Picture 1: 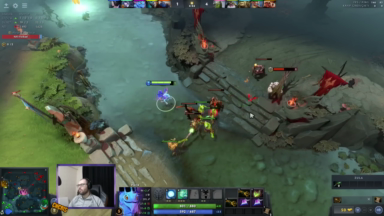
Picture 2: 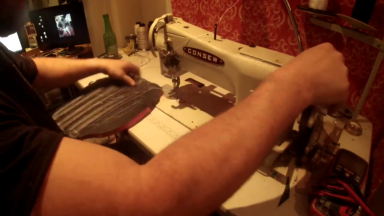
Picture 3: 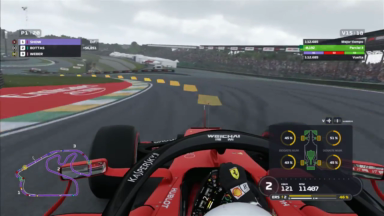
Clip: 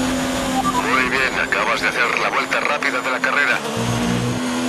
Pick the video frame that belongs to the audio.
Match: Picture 3